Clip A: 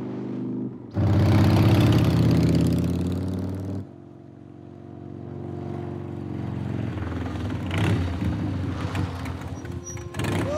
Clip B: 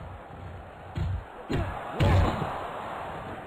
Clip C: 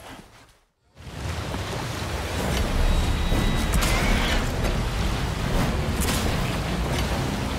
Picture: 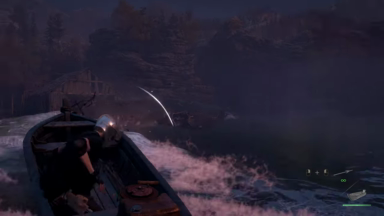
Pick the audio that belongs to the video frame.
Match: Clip C